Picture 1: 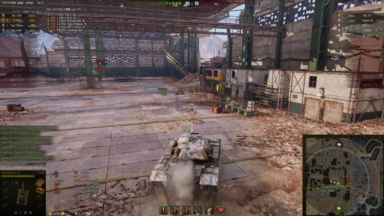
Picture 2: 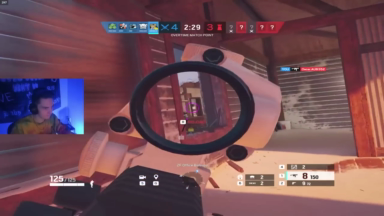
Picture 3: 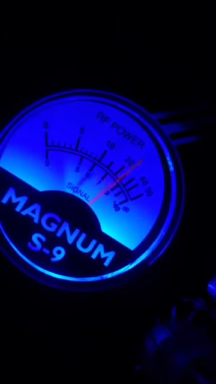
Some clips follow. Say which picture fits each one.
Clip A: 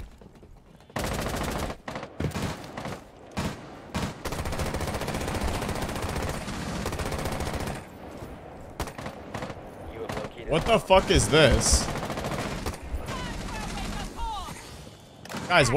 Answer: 2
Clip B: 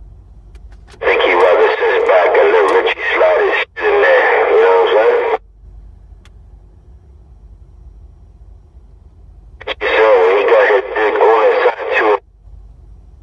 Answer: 3